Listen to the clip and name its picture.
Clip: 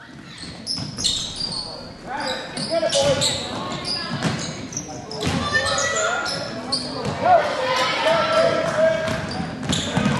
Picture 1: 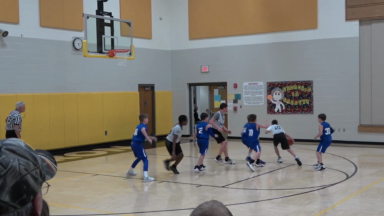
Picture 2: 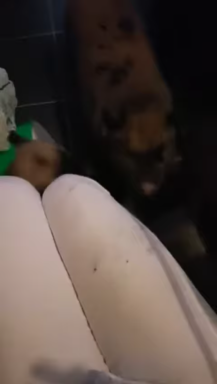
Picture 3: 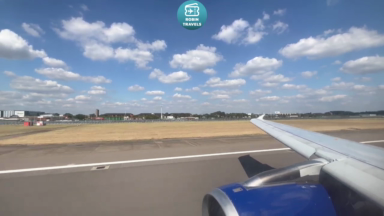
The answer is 1